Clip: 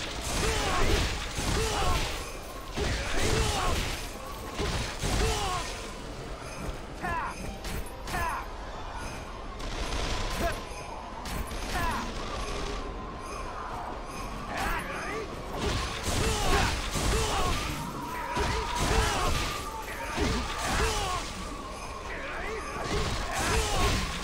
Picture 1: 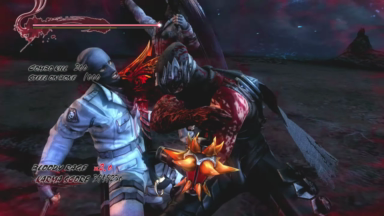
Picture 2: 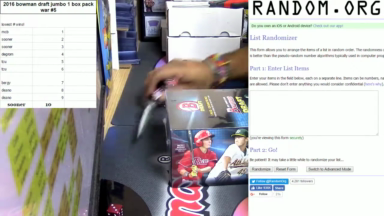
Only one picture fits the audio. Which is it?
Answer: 1